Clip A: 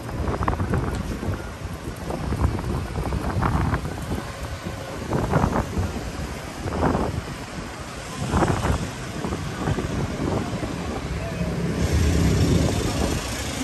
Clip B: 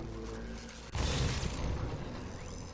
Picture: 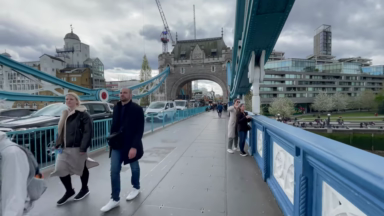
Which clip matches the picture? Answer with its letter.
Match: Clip A